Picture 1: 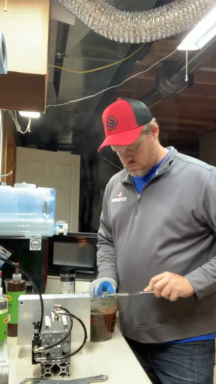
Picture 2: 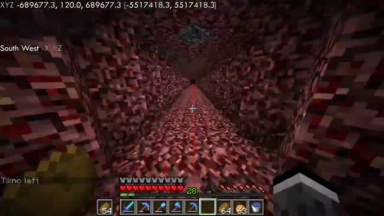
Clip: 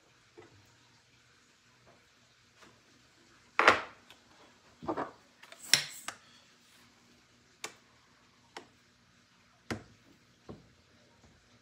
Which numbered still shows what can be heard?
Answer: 1